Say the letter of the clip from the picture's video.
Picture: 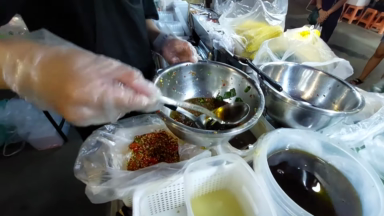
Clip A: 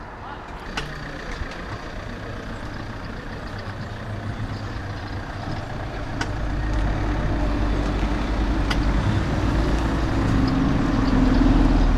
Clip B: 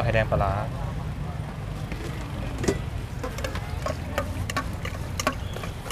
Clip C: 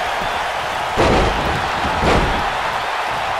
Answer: B